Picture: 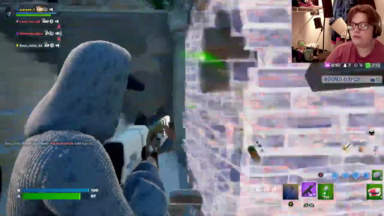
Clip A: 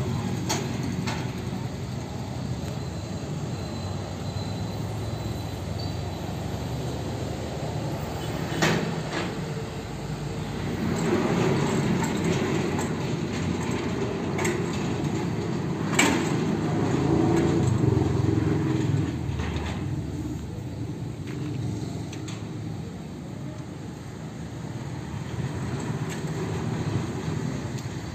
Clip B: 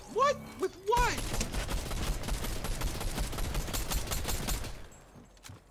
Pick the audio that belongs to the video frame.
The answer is B